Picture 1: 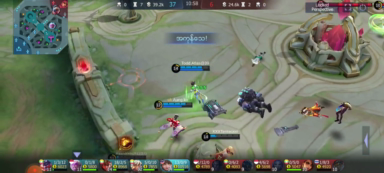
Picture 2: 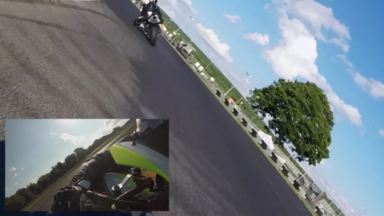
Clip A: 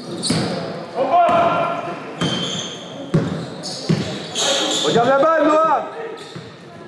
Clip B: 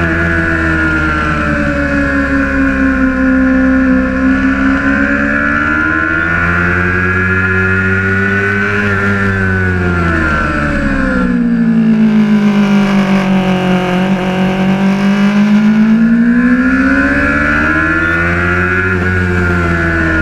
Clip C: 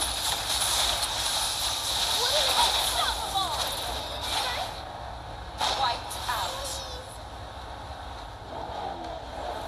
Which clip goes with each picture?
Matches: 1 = C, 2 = B